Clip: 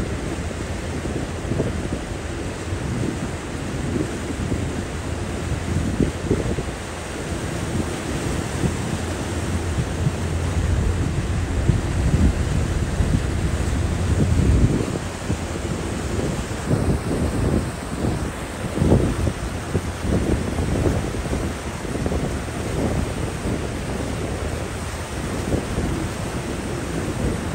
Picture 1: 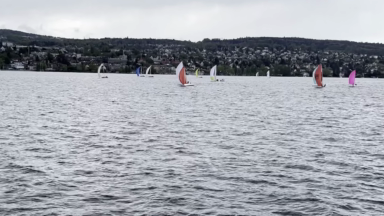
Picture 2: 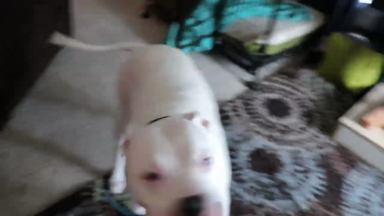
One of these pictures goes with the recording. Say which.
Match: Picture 1